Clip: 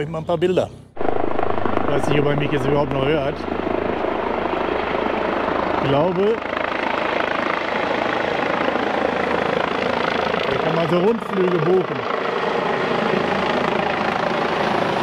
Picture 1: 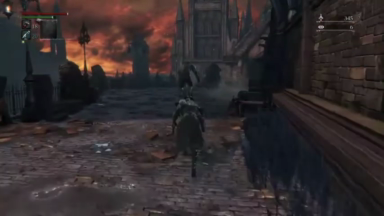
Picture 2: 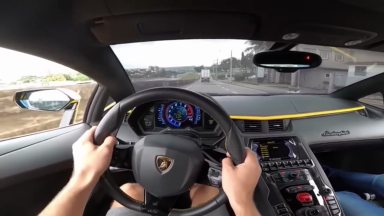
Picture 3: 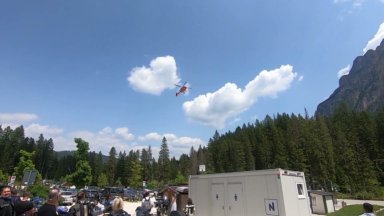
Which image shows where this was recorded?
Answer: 3